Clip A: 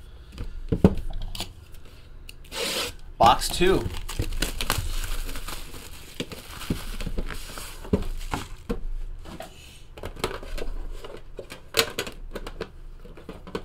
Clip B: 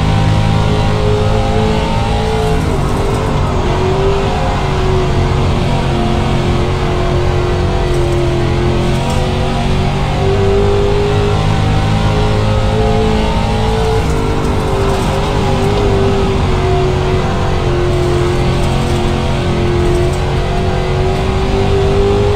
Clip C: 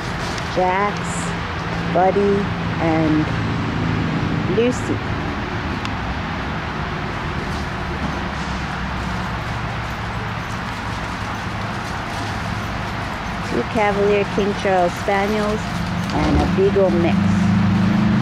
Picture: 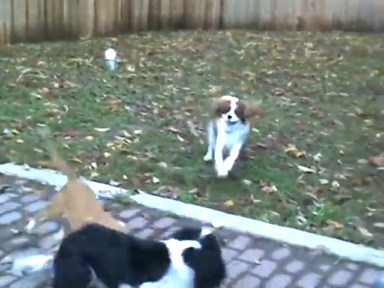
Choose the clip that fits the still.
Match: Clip C